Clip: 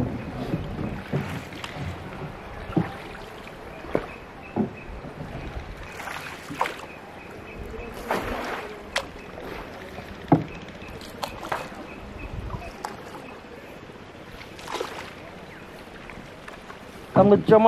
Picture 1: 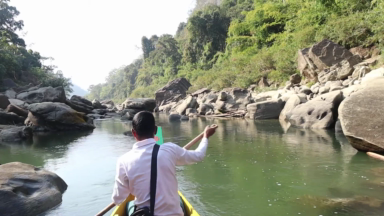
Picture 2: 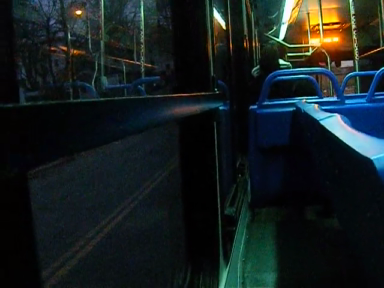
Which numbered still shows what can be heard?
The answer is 1